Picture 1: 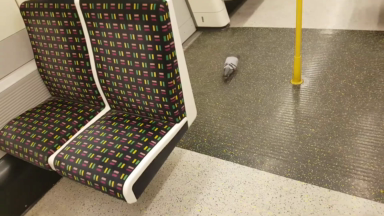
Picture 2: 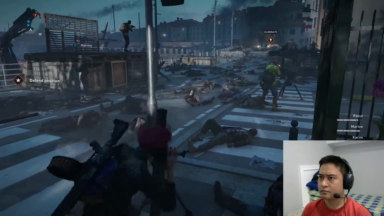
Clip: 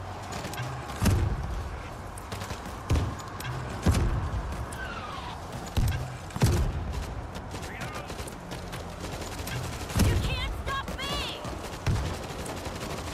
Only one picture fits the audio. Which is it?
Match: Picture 2